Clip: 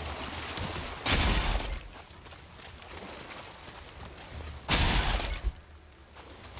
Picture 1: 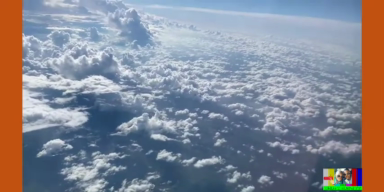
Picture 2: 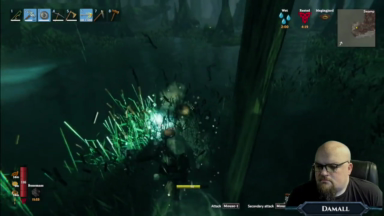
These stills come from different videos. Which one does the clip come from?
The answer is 2